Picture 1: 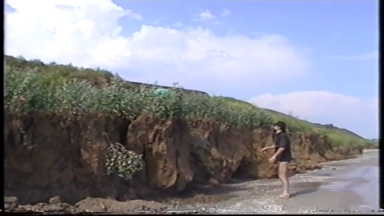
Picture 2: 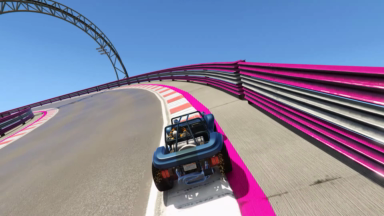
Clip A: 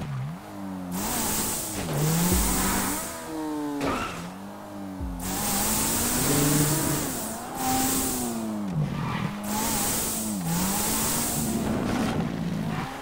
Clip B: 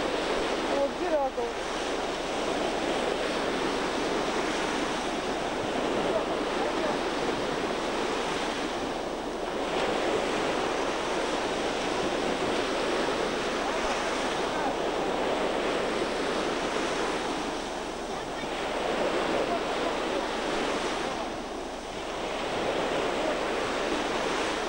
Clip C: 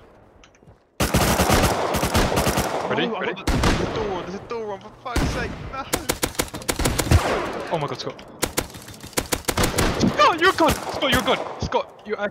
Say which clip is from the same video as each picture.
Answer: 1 B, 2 A